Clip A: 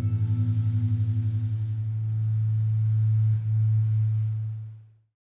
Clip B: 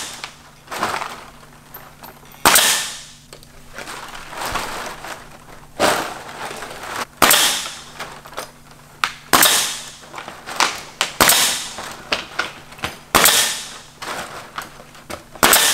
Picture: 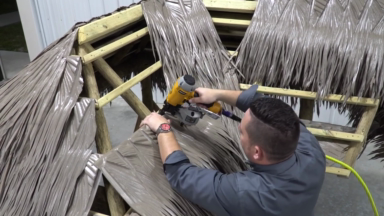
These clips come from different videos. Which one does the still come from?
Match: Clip B